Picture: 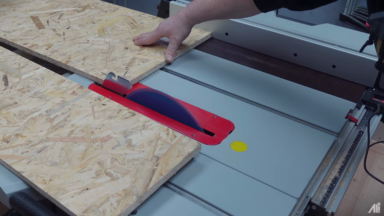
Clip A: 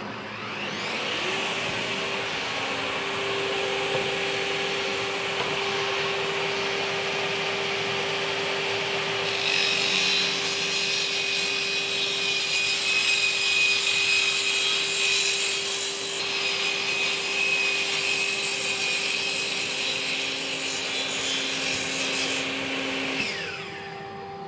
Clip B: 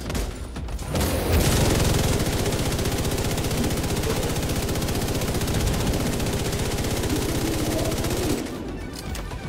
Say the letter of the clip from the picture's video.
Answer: A